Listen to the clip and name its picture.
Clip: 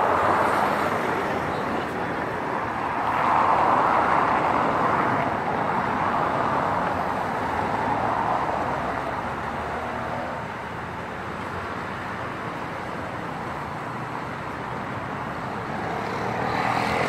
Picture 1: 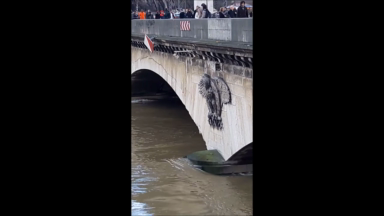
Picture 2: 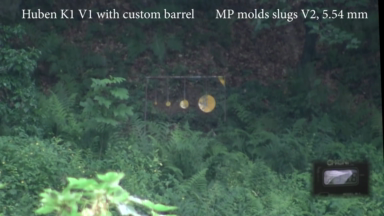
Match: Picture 1